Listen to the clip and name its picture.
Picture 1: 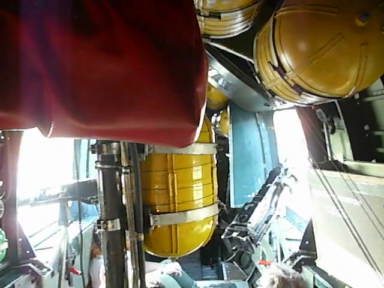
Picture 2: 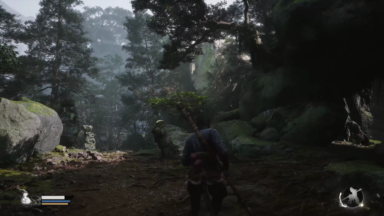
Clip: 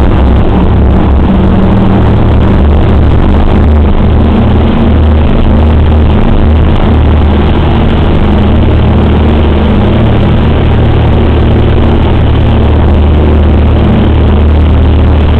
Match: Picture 1